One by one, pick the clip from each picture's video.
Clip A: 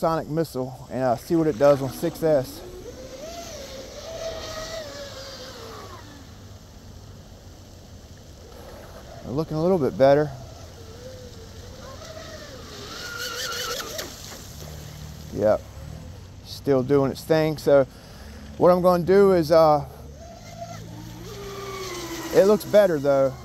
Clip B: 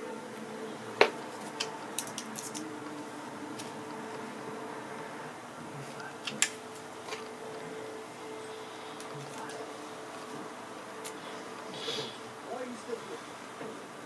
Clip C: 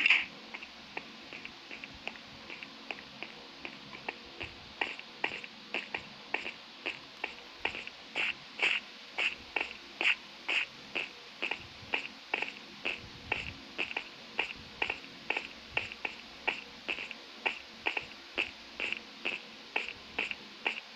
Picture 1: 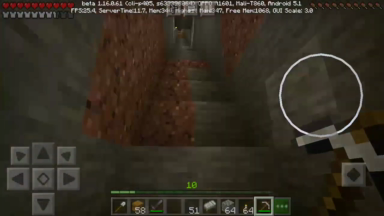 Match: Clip C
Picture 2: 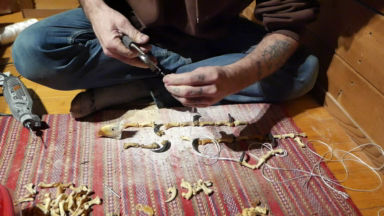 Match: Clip B